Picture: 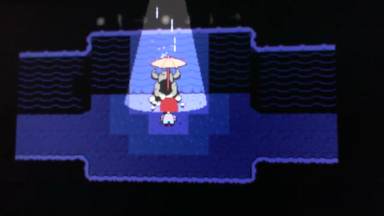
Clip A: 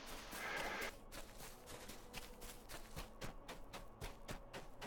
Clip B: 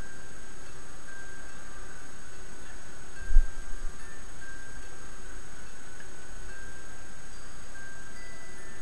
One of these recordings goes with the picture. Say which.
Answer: B